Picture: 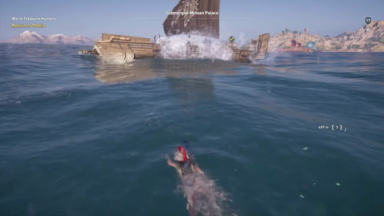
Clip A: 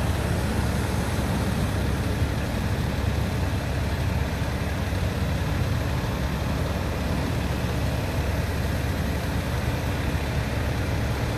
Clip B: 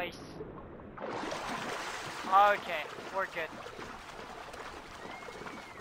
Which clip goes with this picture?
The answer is B